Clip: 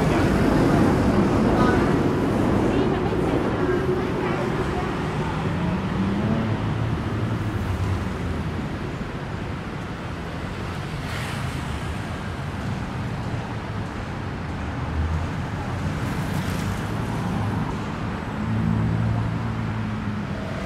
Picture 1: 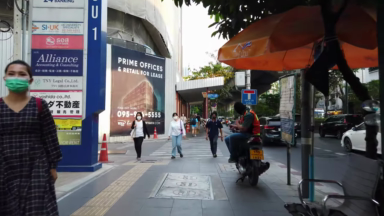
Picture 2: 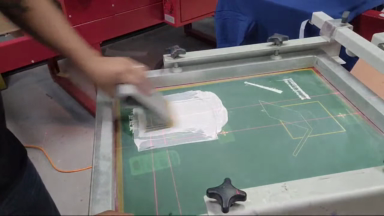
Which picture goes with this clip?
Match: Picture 1